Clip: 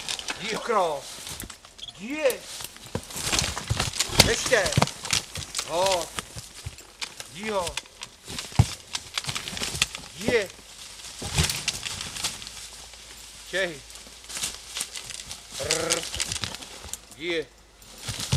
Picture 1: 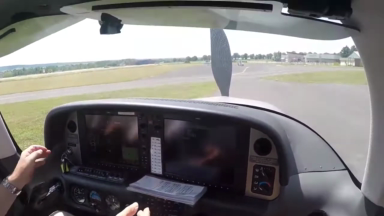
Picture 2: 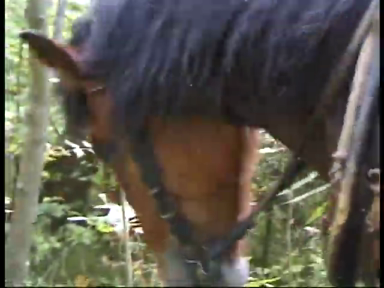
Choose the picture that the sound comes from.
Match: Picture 2